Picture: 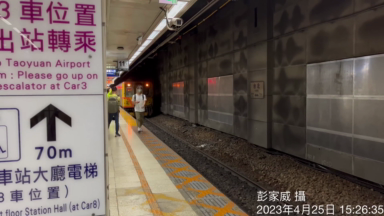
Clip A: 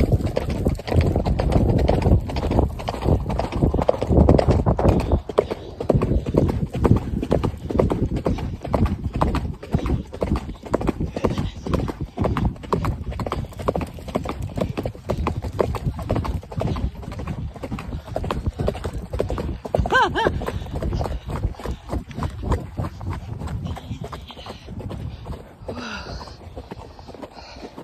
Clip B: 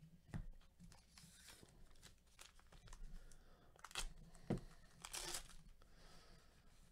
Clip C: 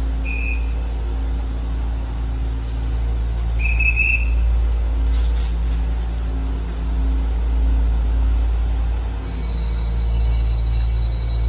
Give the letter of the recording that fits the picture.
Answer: C